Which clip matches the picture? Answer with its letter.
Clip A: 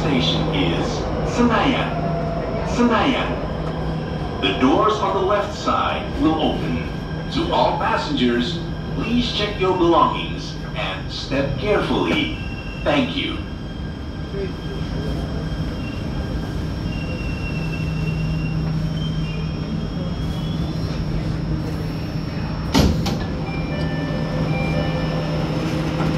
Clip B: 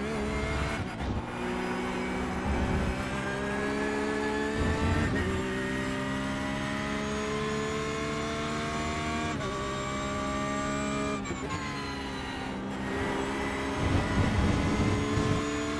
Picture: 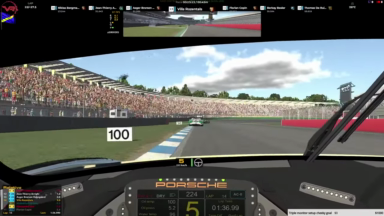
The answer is B